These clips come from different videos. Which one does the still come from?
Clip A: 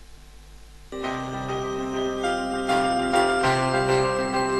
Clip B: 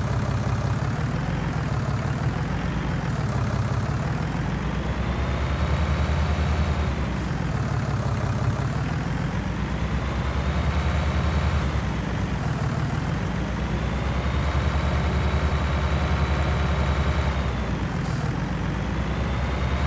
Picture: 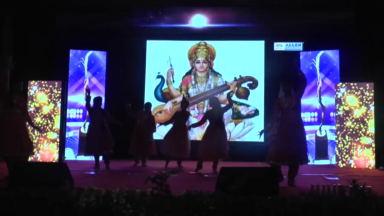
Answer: A